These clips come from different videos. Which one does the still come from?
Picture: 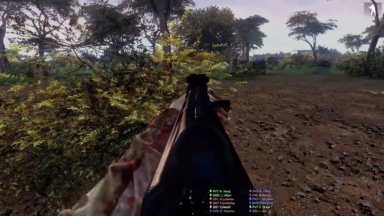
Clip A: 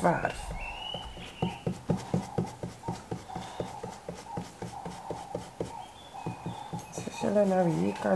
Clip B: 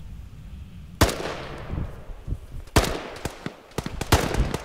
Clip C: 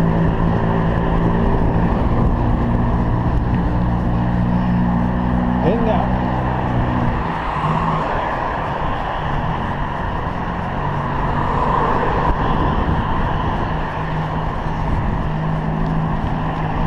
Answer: B